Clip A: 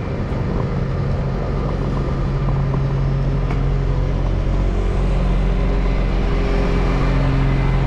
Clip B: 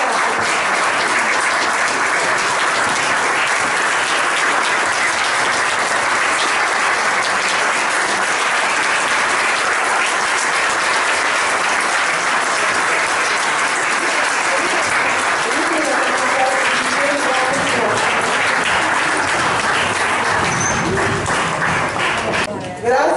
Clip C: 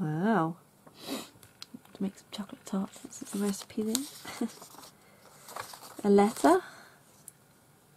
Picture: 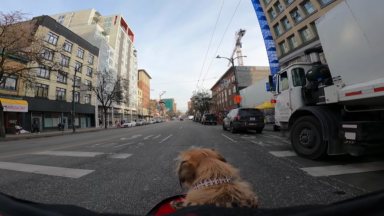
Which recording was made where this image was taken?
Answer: A